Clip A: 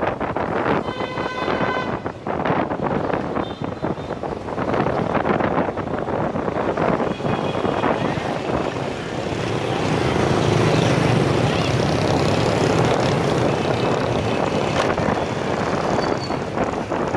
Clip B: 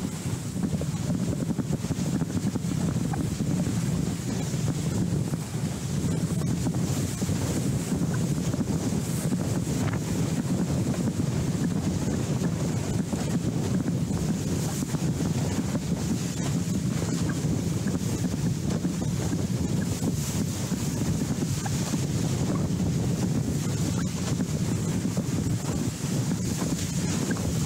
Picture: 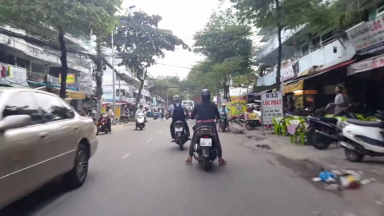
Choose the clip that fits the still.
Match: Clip A